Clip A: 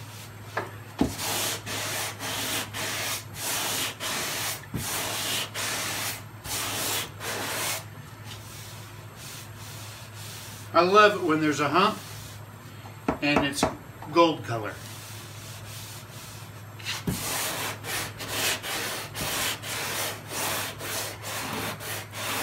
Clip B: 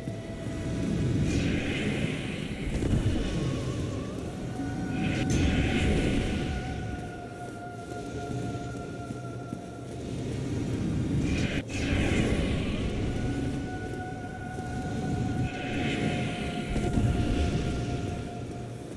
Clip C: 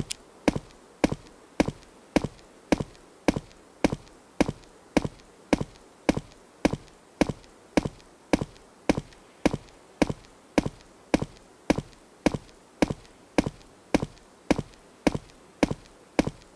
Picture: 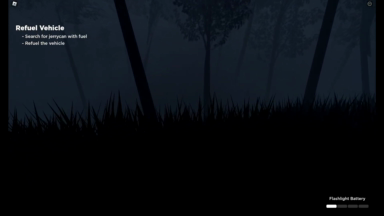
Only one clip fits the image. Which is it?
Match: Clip C